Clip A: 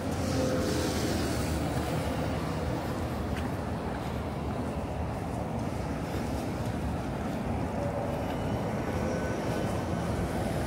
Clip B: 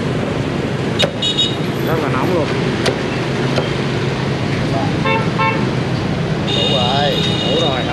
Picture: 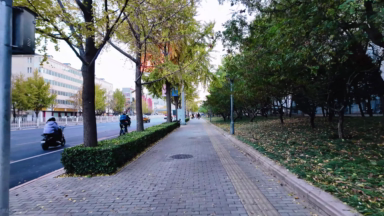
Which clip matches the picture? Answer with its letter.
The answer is A